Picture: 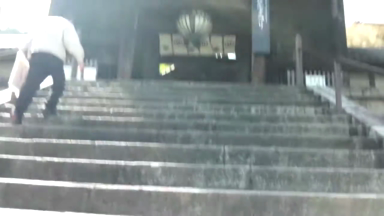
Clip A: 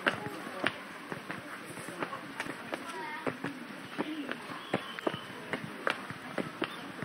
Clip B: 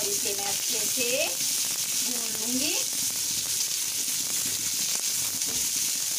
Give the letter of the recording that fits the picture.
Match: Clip A